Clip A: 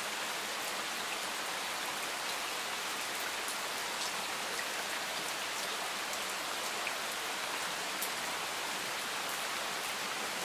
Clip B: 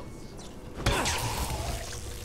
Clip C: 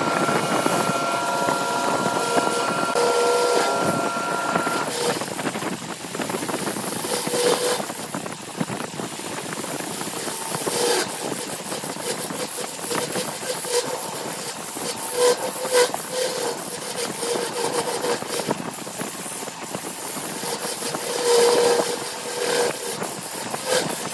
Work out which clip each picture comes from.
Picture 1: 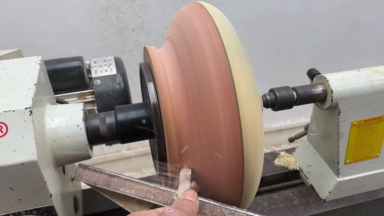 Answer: C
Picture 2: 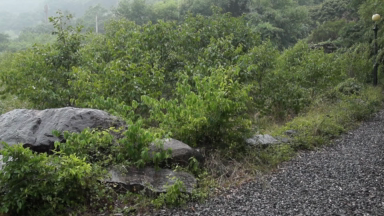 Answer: A